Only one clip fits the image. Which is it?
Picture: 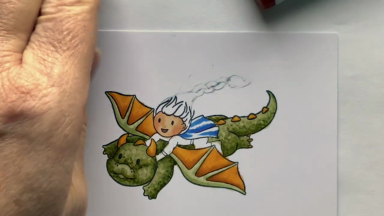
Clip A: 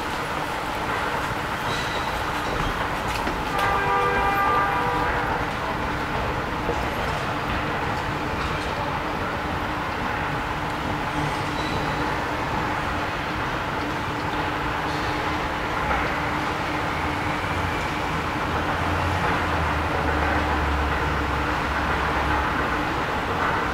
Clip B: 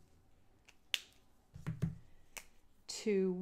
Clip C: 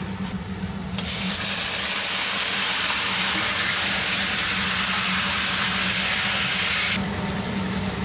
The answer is B